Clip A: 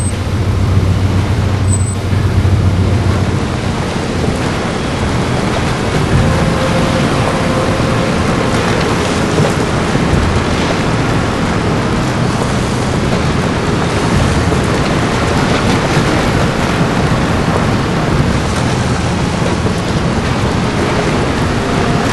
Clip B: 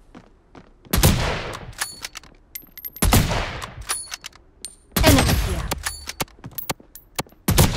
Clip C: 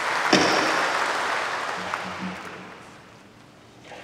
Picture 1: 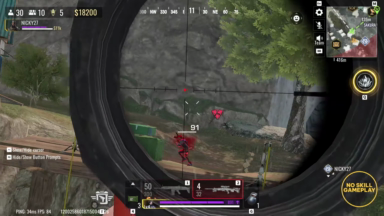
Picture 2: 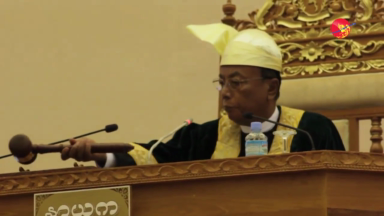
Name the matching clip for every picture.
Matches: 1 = B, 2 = C